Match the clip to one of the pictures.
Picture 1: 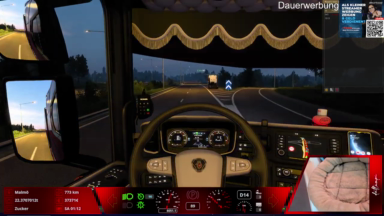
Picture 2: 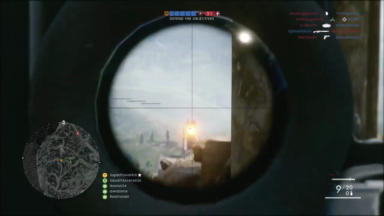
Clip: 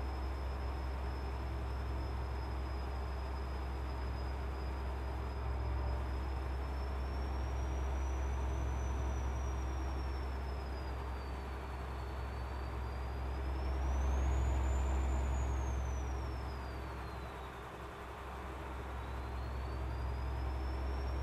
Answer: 1